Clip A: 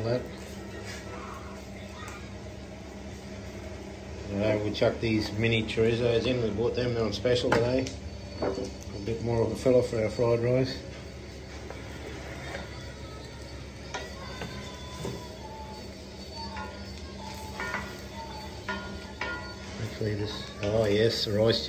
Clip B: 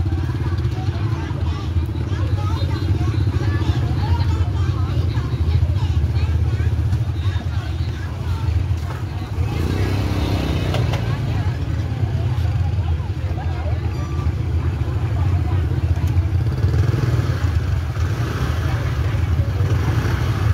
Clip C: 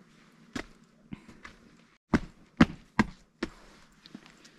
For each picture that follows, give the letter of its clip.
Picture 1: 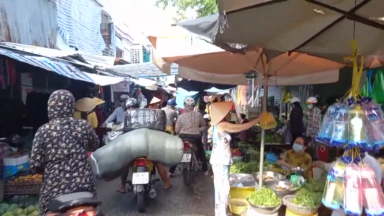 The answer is B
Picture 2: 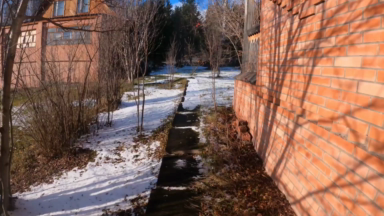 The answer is C